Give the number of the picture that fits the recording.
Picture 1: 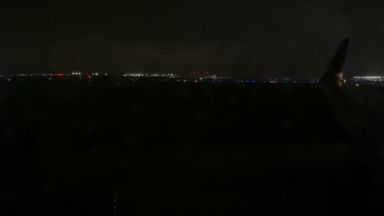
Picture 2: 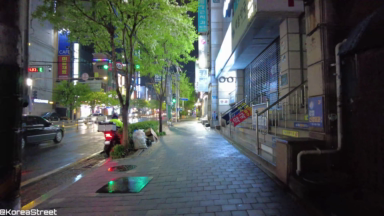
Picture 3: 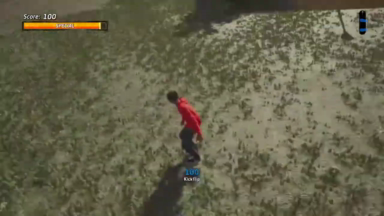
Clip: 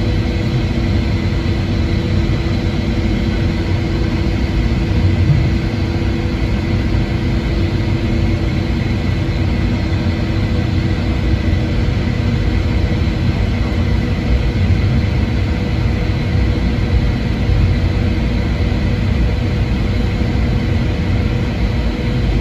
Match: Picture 1